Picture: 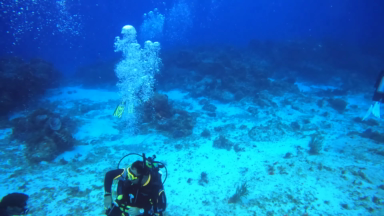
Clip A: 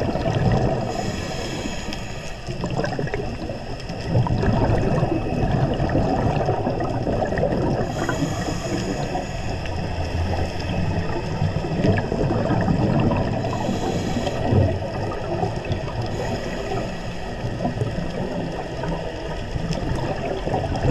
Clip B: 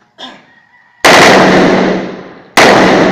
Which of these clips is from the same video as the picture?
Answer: A